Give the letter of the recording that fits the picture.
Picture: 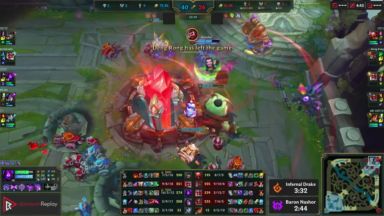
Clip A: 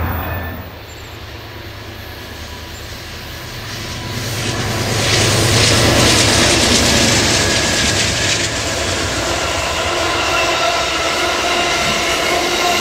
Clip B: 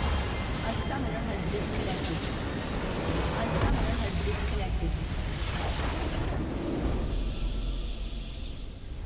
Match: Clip B